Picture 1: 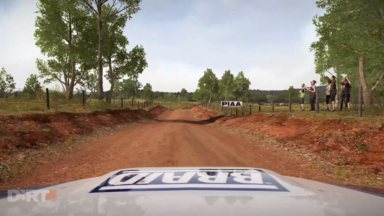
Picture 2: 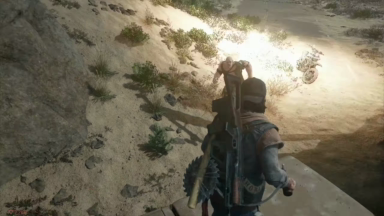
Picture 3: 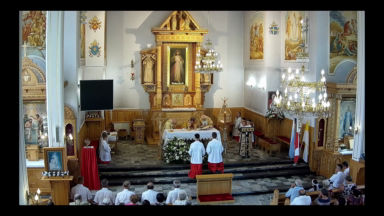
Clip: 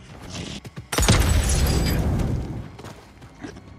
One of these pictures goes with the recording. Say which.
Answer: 2